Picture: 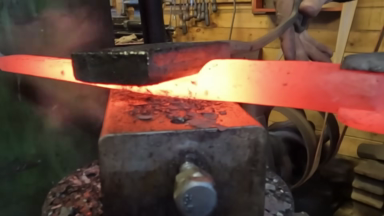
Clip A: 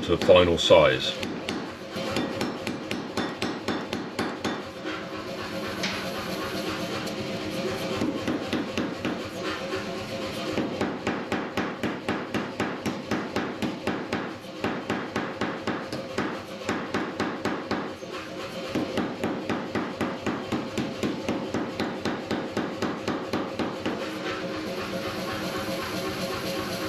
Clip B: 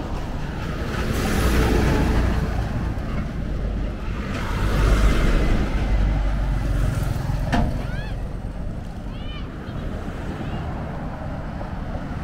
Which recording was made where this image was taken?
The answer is A